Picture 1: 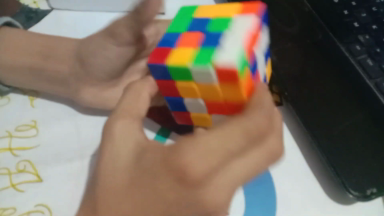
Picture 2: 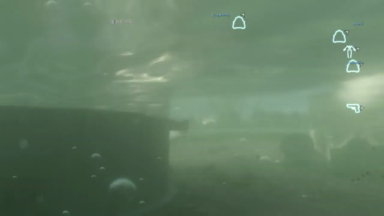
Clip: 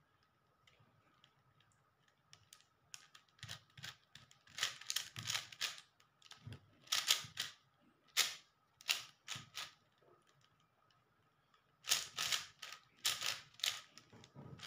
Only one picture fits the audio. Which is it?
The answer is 1